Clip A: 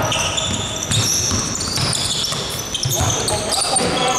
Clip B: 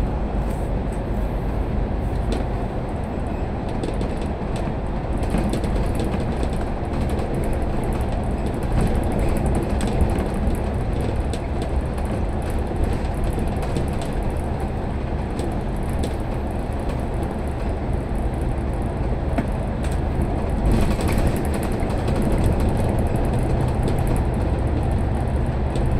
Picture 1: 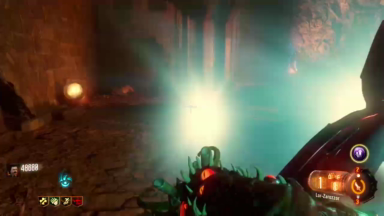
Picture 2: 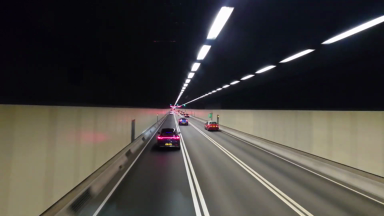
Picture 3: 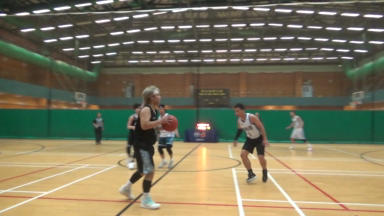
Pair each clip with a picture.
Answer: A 3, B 2